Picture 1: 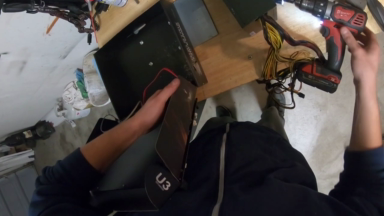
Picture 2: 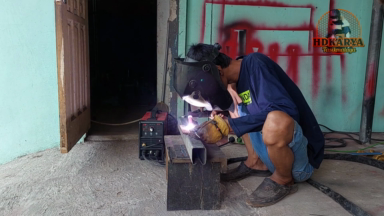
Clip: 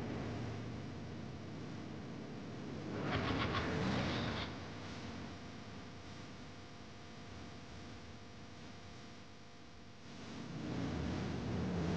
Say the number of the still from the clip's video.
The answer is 2